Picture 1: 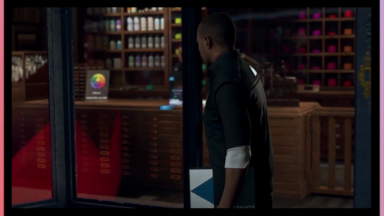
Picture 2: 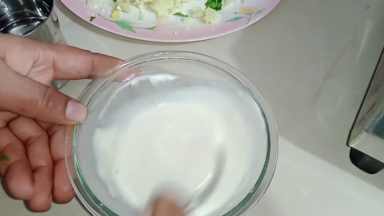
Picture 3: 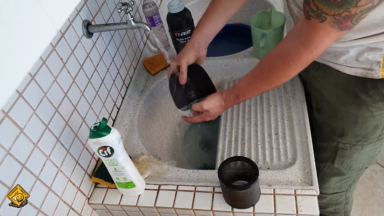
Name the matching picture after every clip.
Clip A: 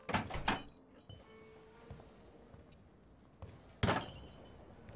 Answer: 1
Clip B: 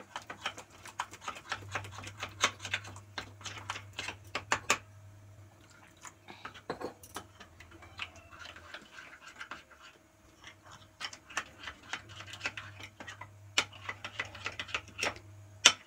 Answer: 2